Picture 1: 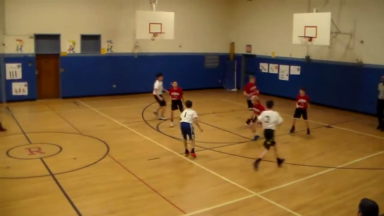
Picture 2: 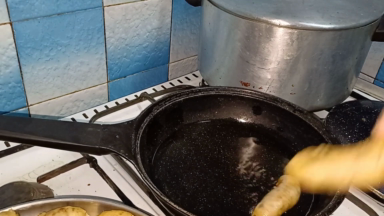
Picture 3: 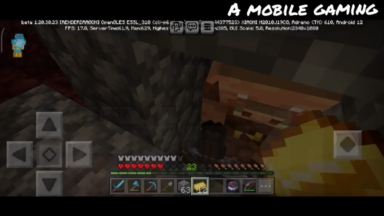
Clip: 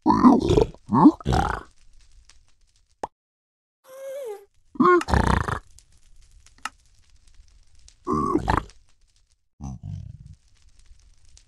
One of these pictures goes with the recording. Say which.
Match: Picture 3